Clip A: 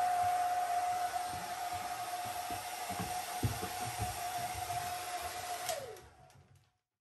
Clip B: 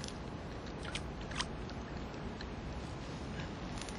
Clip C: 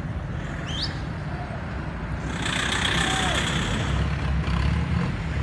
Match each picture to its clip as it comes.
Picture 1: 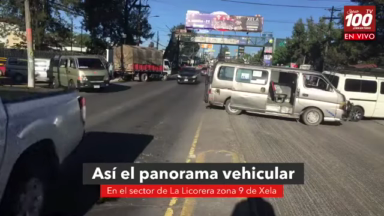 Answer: C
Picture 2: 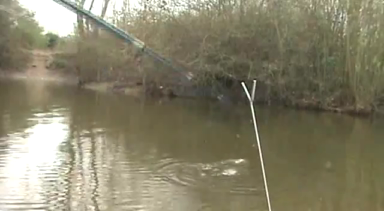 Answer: B